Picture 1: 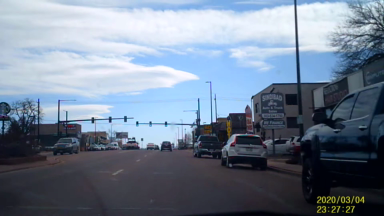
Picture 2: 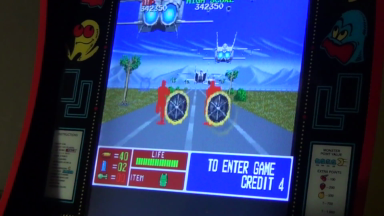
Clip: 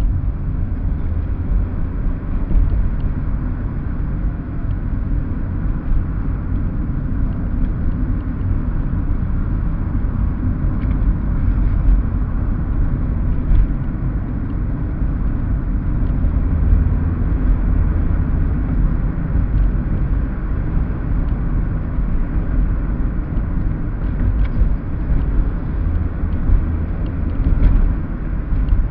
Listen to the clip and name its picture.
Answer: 1